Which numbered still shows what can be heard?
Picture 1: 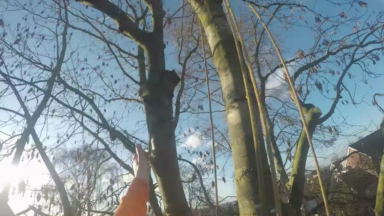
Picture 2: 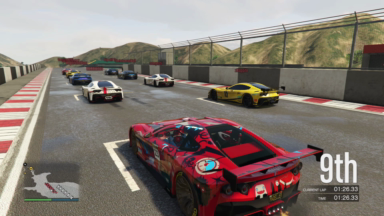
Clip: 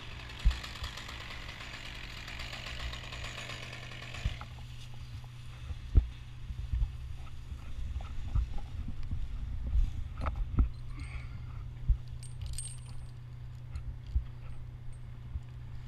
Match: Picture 1